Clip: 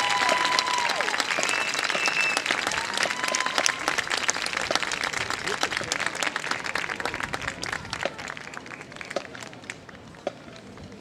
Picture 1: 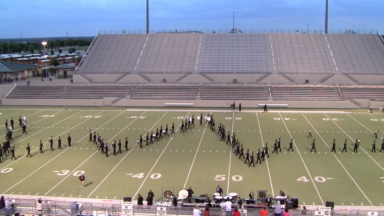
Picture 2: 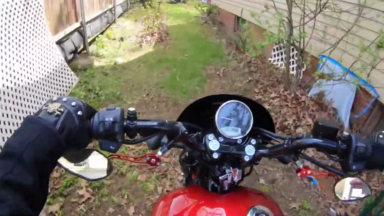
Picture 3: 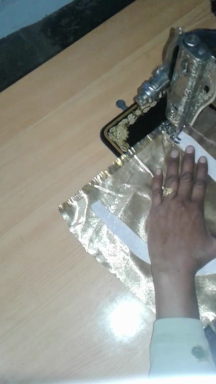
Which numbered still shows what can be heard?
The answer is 1